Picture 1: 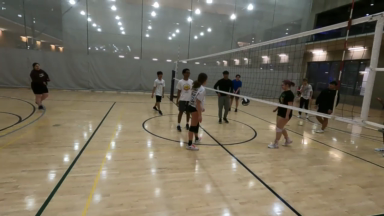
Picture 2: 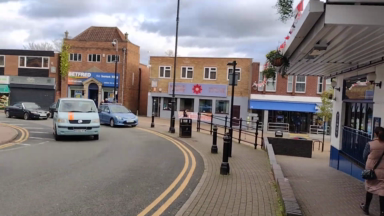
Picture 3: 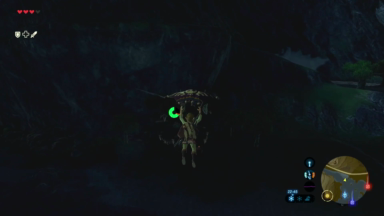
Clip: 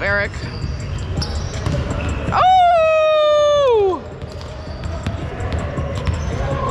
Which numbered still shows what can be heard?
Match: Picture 1